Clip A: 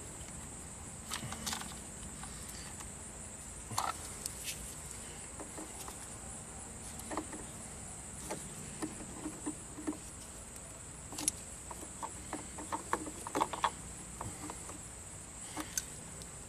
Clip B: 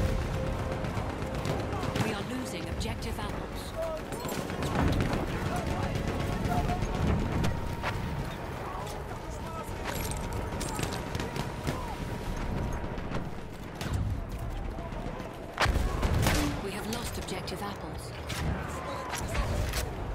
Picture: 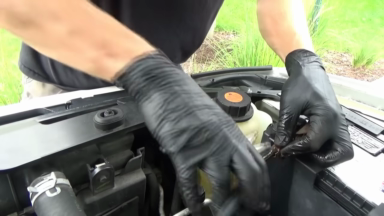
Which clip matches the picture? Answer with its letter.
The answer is A